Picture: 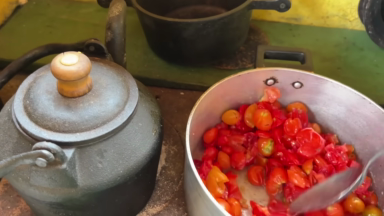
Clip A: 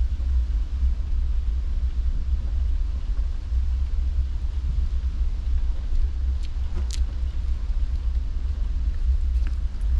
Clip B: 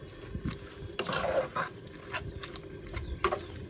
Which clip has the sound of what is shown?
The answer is B